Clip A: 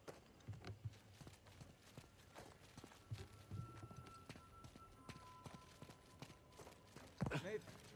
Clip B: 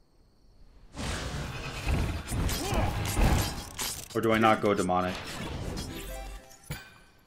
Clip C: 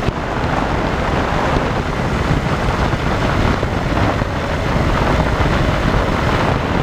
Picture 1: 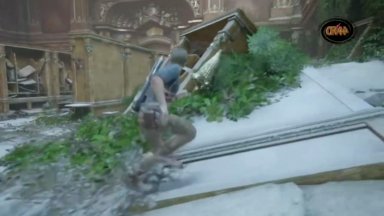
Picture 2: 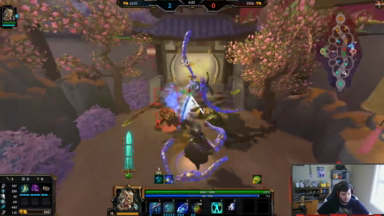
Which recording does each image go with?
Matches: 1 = A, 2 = B